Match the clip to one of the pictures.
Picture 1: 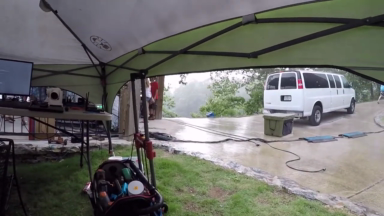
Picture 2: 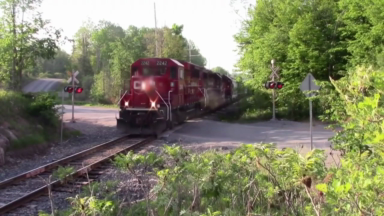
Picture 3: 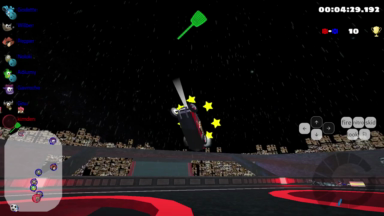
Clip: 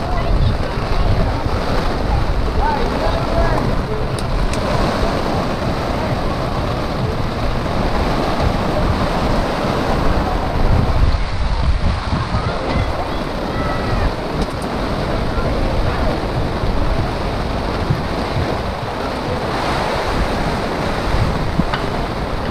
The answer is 1